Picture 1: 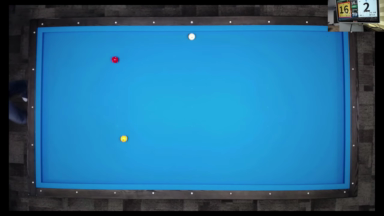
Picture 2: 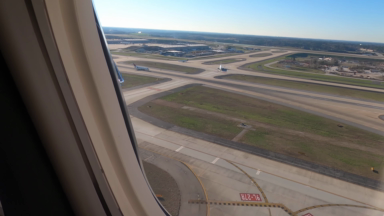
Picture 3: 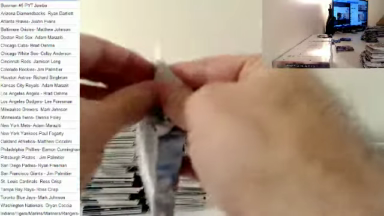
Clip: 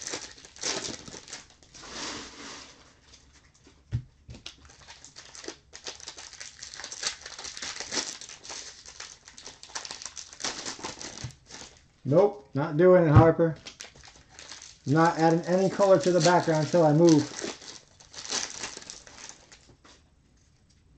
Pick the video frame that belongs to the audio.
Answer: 3